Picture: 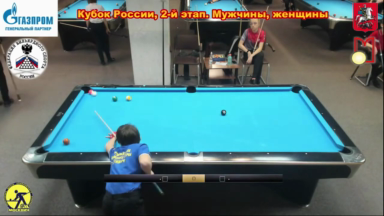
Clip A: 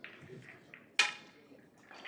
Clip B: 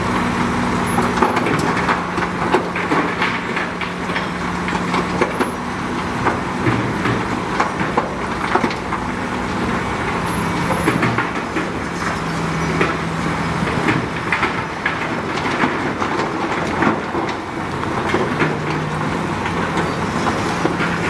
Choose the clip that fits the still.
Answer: A